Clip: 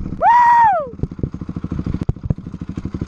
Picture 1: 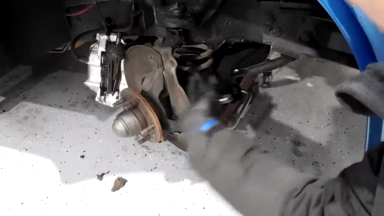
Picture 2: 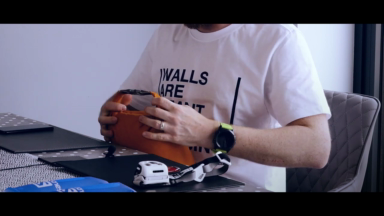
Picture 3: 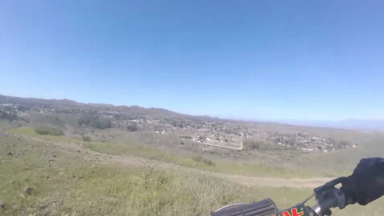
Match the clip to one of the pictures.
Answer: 3